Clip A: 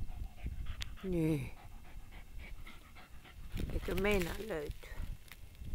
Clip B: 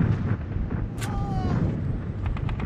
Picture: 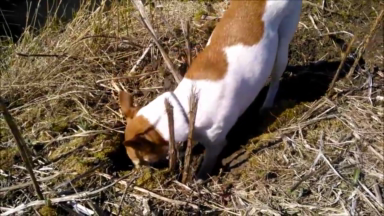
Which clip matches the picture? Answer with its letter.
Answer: A